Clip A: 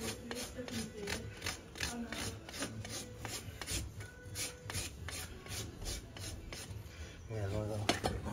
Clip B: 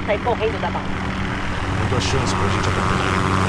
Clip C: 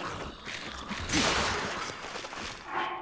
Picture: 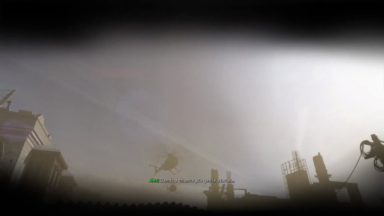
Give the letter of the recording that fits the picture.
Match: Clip B